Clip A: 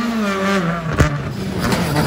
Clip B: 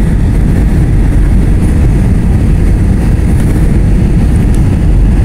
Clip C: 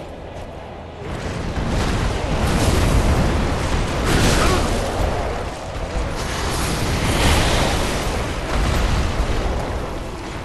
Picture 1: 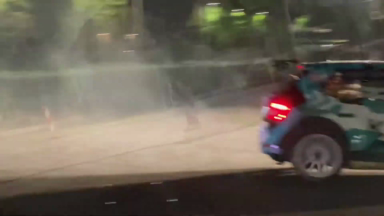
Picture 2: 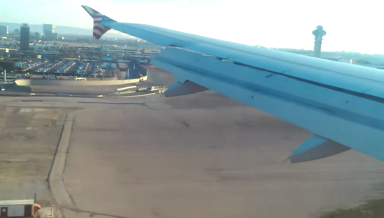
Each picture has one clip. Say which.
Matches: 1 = A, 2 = B